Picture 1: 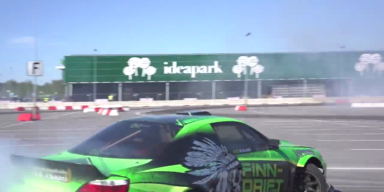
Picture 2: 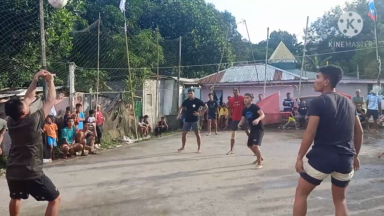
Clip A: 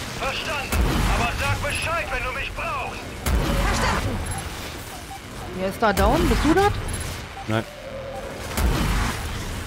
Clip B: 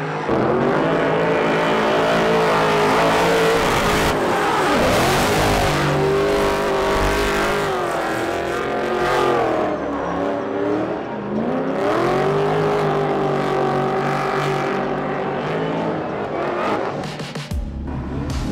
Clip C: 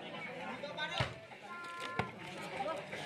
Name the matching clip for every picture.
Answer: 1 B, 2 C